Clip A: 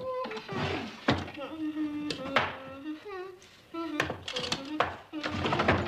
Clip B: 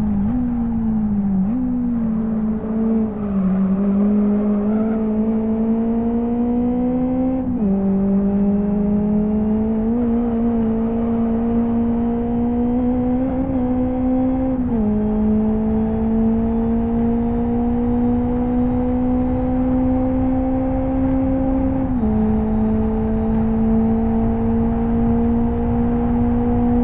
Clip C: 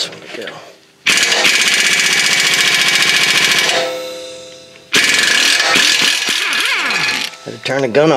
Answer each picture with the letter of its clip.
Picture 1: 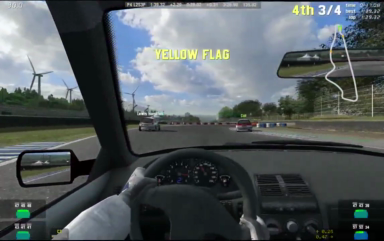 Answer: B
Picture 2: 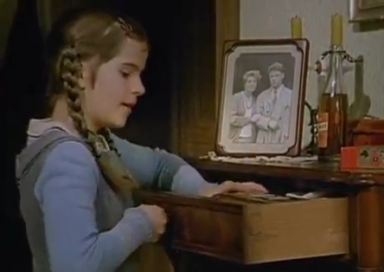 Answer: A